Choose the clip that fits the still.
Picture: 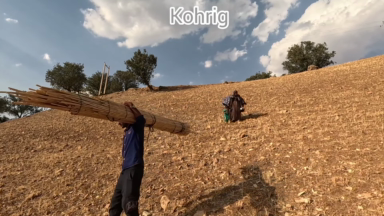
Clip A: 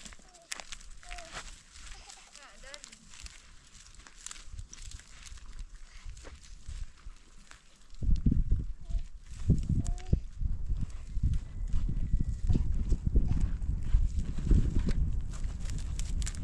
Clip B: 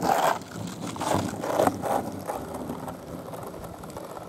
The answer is A